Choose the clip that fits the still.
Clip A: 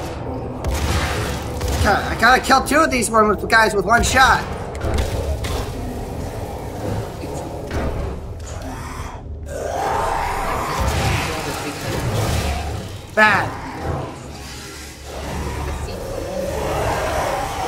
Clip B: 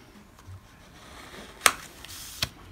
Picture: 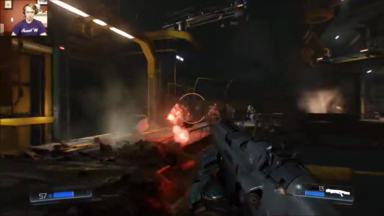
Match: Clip A